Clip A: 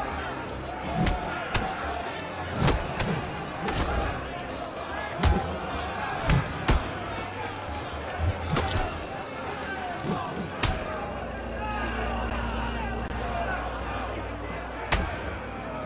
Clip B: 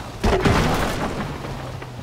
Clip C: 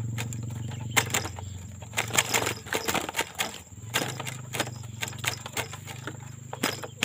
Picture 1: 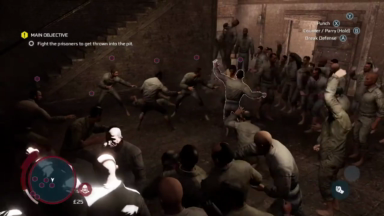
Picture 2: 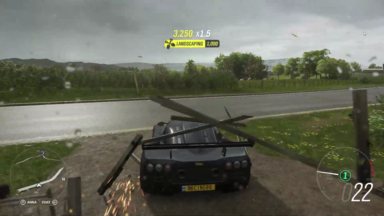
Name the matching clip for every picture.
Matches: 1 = A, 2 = B